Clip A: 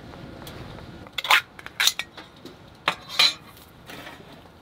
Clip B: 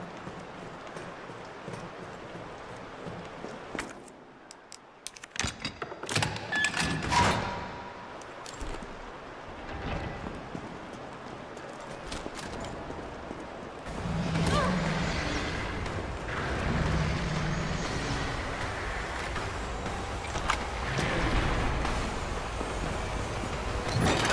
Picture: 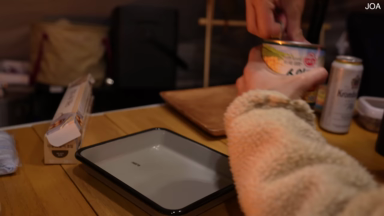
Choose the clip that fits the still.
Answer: A